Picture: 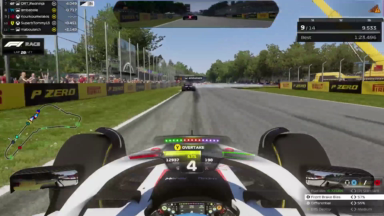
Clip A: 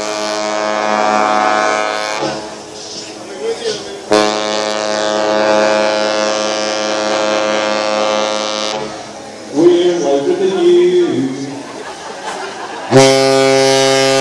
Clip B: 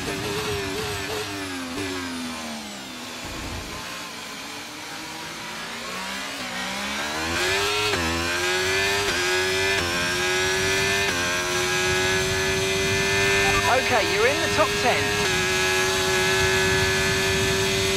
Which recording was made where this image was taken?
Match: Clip B